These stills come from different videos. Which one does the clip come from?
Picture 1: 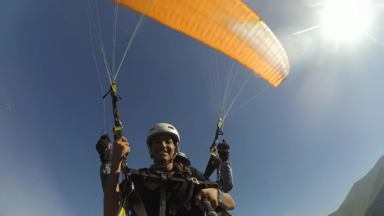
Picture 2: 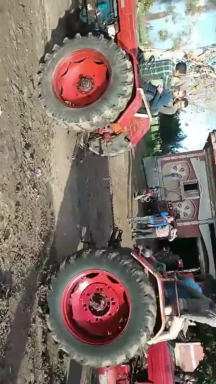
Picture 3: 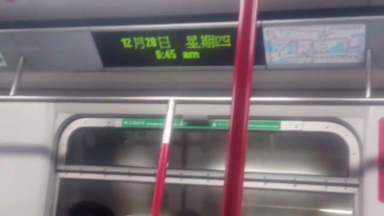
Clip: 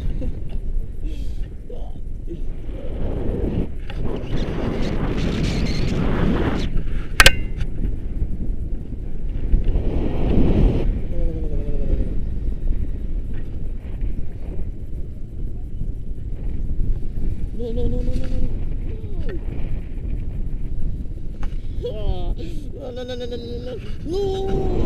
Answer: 1